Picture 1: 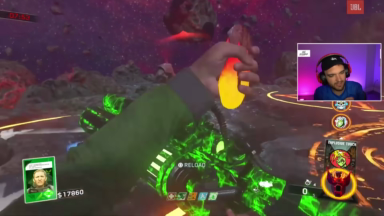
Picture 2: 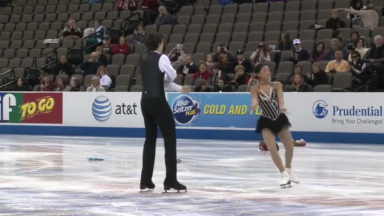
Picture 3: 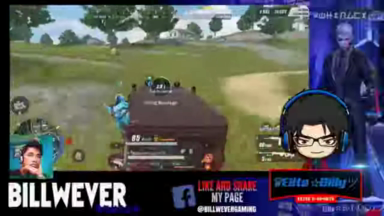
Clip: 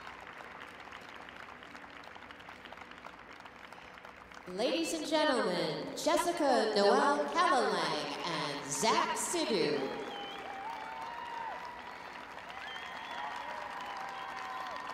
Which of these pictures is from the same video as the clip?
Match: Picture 2